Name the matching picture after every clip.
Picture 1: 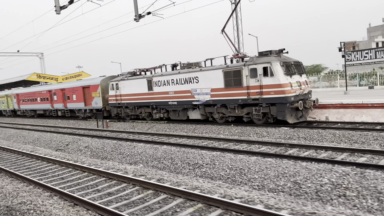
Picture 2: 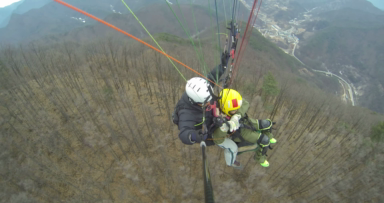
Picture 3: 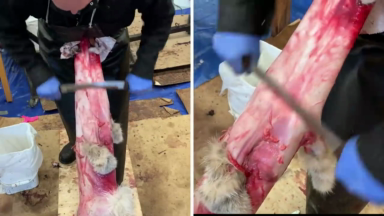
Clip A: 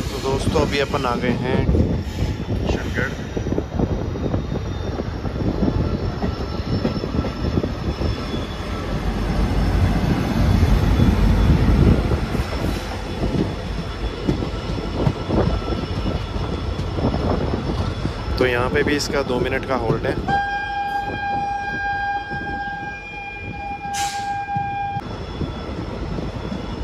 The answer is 1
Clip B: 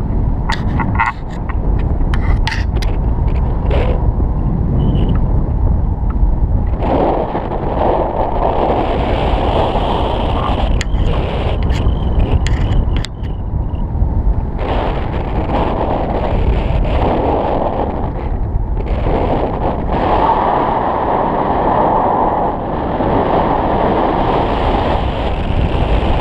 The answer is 2